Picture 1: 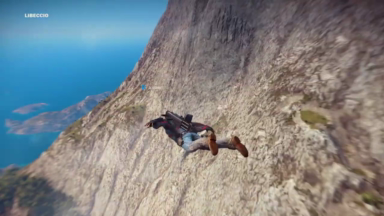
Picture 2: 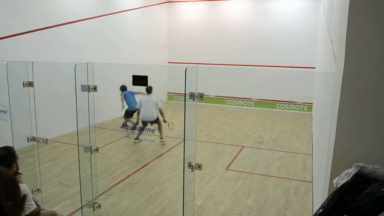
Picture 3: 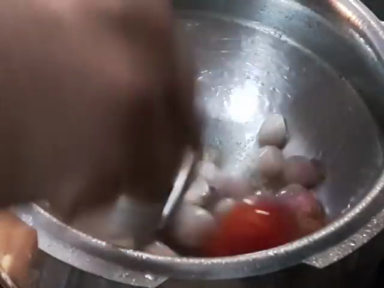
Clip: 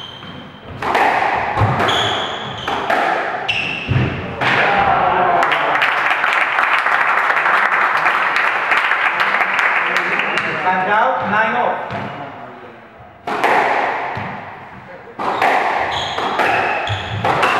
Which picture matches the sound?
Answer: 2